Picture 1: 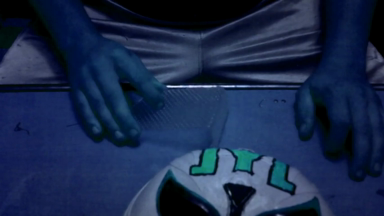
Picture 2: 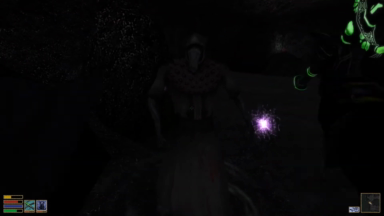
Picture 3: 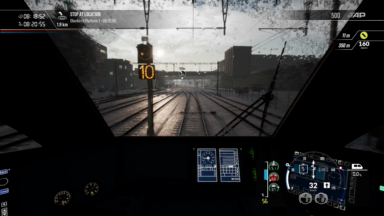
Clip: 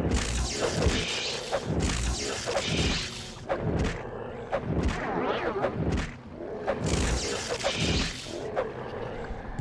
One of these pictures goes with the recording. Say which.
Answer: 2